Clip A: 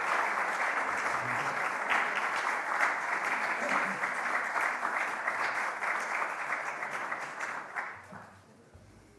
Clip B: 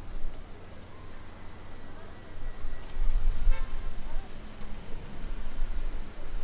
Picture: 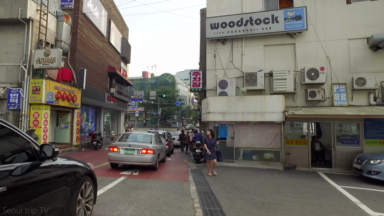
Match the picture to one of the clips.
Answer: B